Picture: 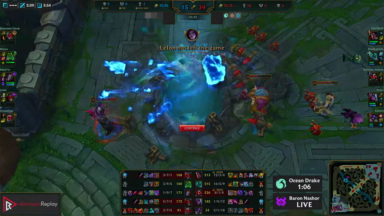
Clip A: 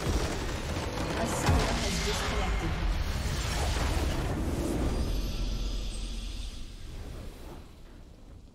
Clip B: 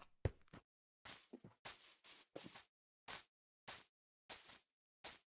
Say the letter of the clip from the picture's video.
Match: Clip A